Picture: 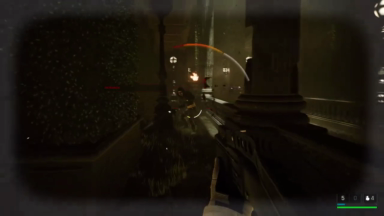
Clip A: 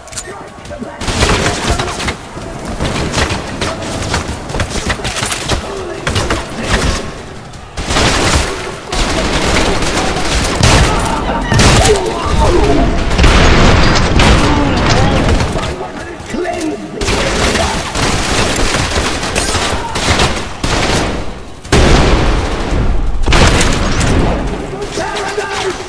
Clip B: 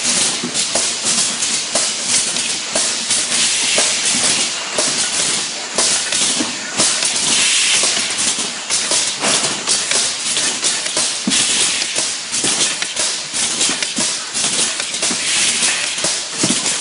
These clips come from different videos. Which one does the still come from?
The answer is A